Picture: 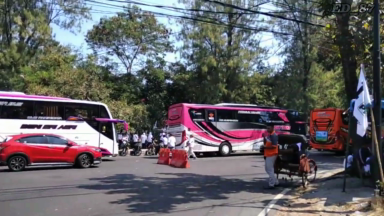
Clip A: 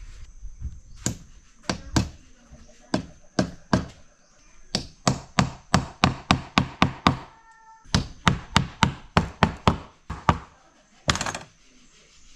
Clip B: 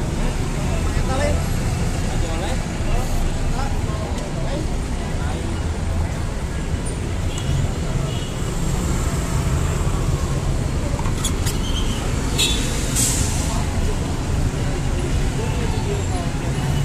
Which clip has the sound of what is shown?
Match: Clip B